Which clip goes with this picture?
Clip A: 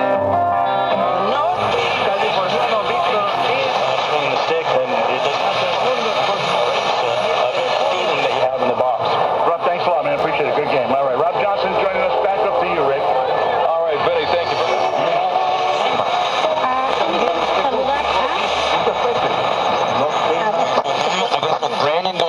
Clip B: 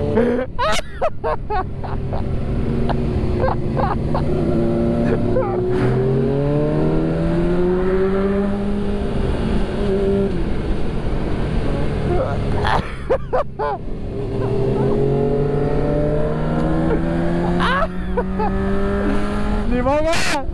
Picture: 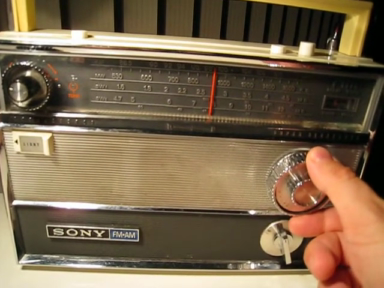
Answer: A